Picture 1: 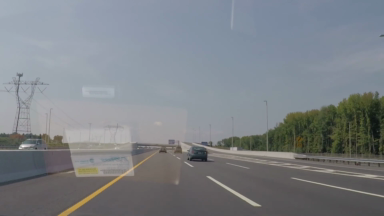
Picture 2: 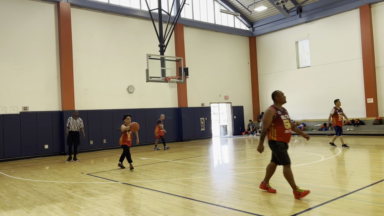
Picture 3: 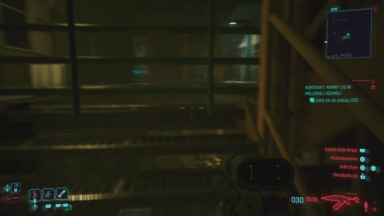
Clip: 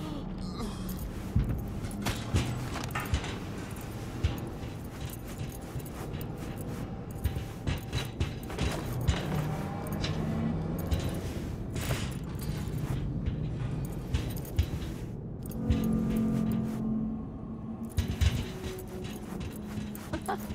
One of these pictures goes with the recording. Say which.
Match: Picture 3